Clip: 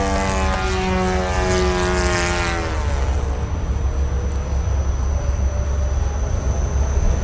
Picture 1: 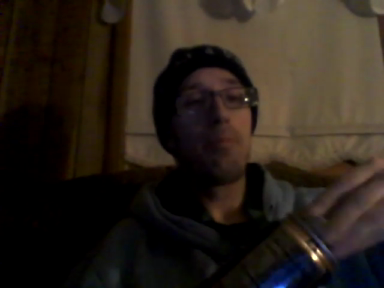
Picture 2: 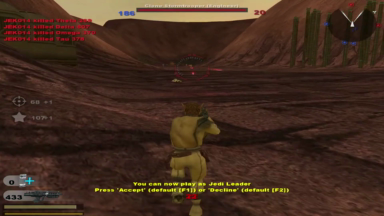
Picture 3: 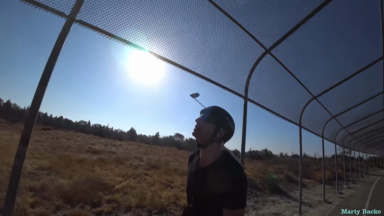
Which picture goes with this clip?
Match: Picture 3